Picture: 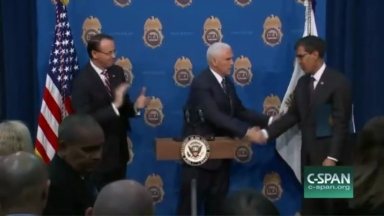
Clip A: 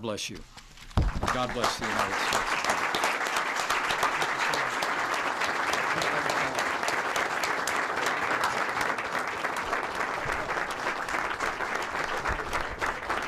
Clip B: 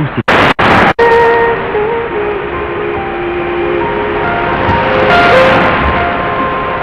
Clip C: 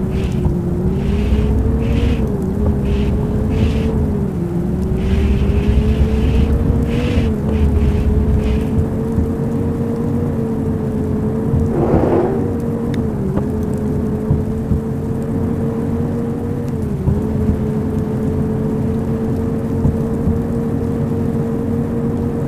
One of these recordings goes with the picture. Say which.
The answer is A